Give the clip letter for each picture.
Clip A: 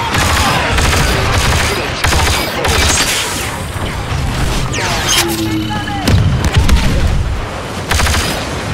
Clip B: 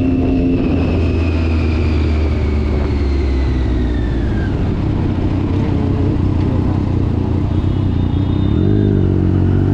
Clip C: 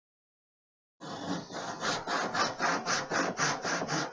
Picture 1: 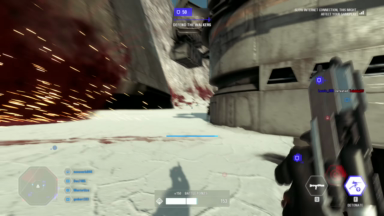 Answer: A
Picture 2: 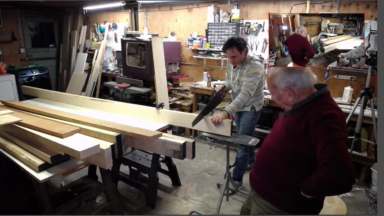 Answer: C